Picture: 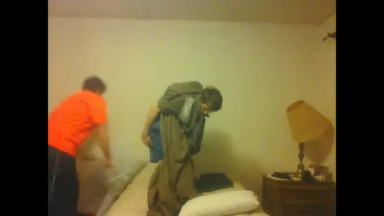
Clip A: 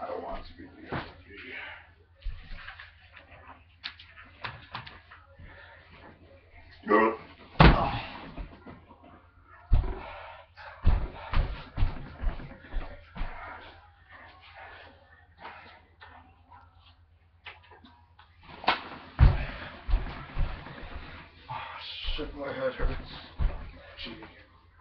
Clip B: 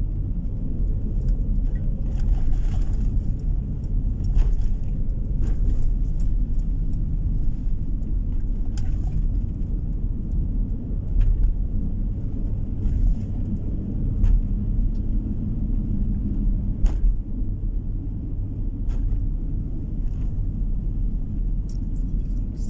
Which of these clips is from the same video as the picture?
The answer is A